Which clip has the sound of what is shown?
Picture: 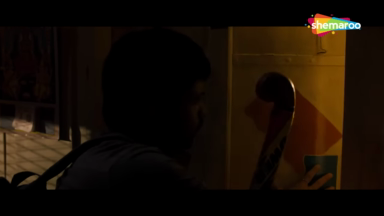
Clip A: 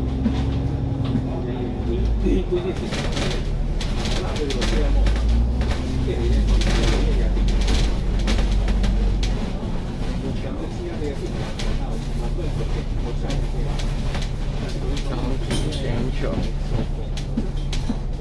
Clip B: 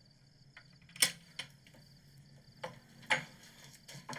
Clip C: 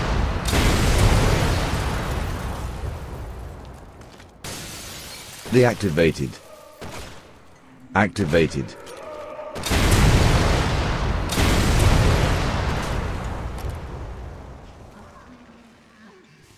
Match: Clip B